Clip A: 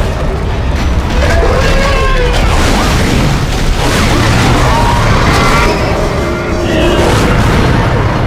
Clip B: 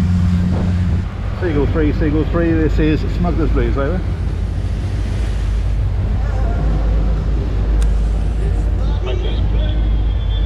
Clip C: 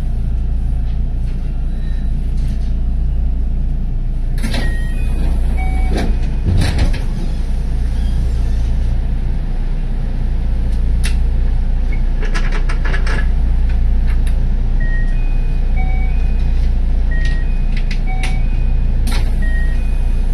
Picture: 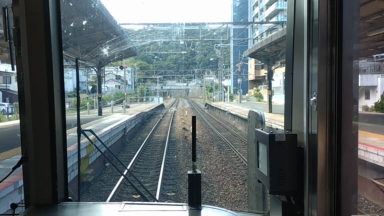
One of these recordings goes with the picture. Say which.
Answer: C